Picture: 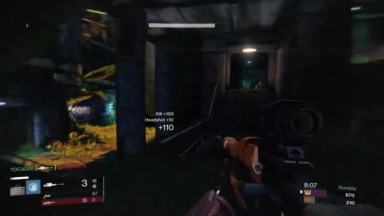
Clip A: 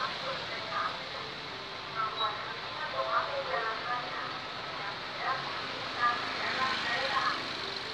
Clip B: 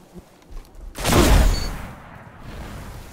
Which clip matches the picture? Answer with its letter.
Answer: B